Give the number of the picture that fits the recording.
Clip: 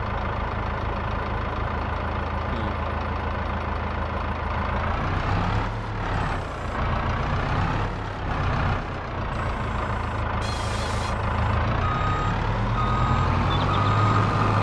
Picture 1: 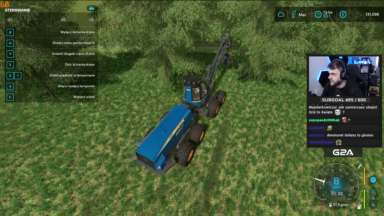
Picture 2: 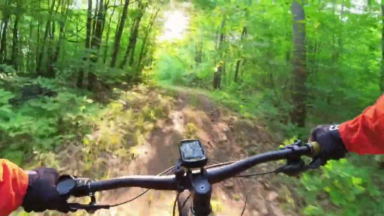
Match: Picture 1